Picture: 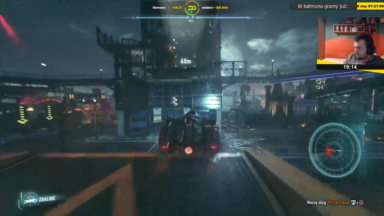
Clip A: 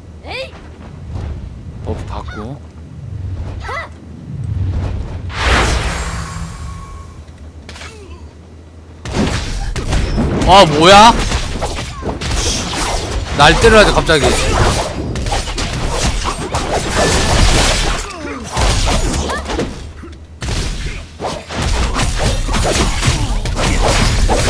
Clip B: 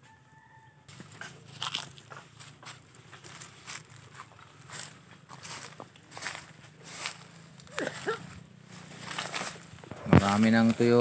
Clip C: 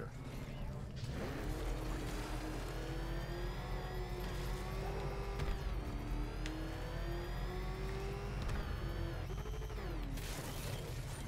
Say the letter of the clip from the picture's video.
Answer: C